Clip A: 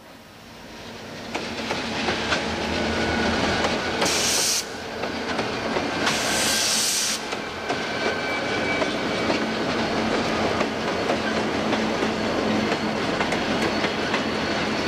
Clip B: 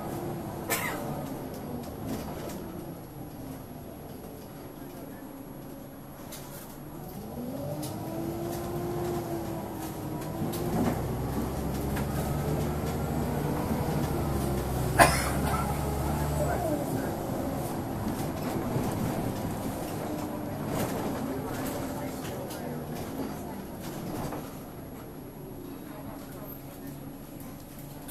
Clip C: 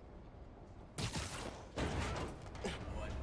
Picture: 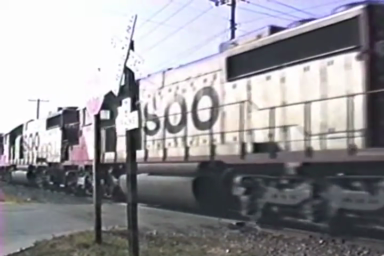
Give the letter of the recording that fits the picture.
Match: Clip A